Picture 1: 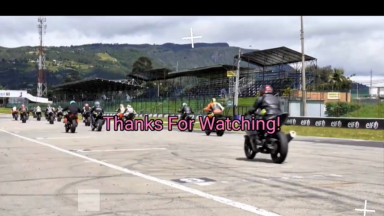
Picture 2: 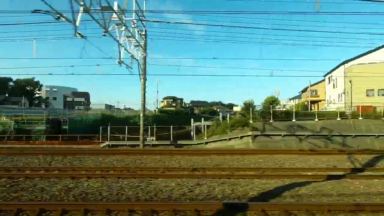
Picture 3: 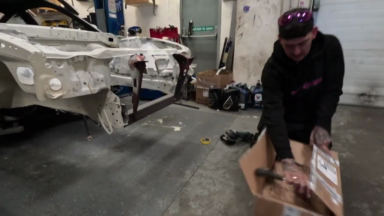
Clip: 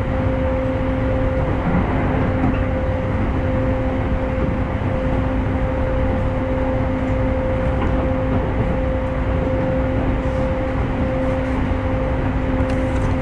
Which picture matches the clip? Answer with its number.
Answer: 2